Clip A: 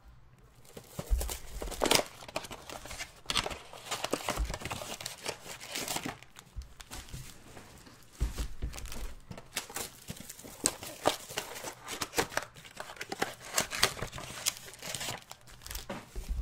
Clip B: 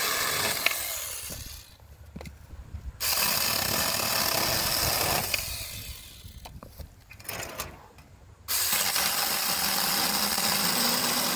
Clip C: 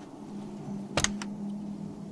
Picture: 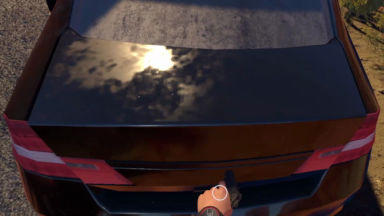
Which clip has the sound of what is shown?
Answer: C